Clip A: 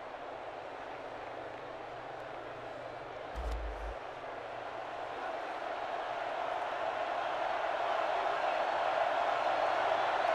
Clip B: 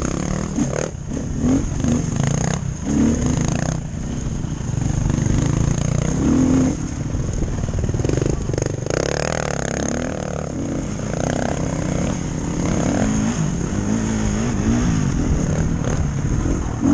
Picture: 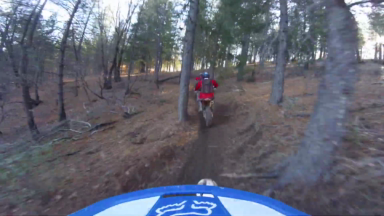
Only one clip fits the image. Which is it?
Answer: B